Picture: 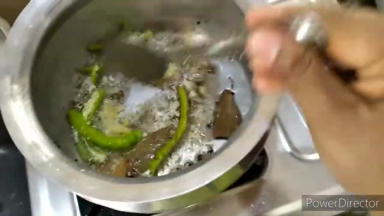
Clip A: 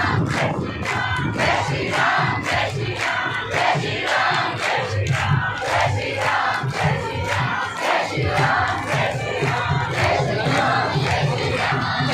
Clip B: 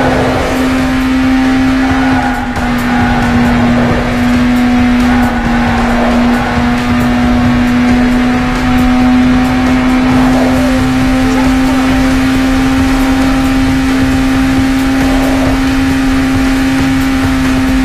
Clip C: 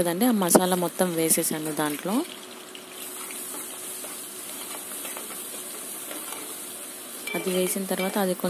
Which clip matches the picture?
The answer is C